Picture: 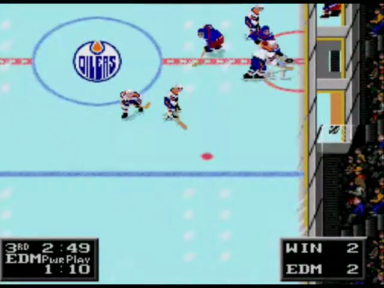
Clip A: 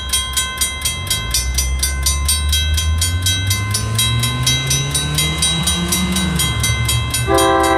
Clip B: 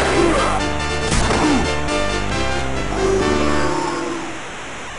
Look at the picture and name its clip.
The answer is B